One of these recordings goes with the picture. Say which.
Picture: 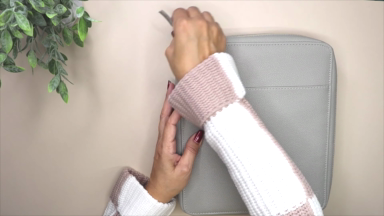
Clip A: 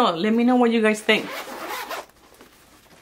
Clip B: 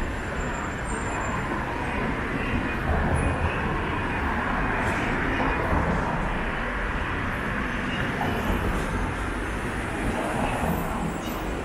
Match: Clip A